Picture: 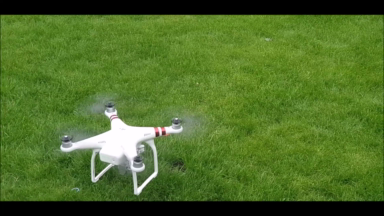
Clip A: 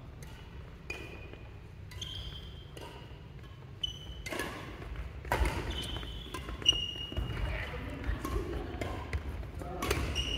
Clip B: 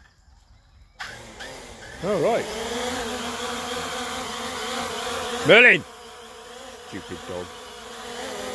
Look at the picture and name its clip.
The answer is B